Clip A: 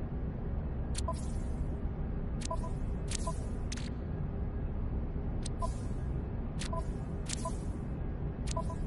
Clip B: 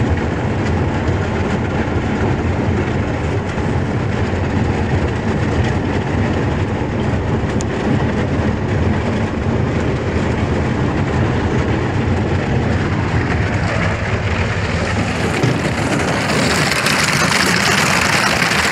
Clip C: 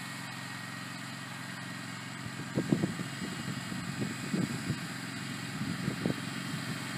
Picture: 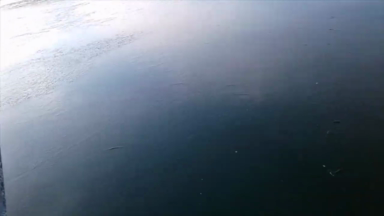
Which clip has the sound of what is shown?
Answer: B